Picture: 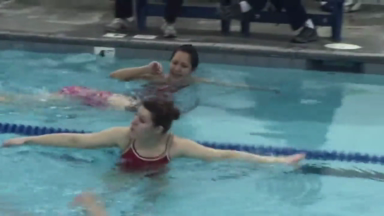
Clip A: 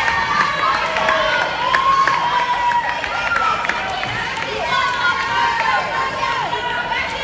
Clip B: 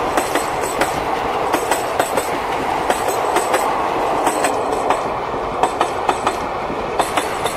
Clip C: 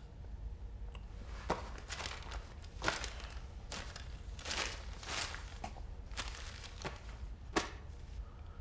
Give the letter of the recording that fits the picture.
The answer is A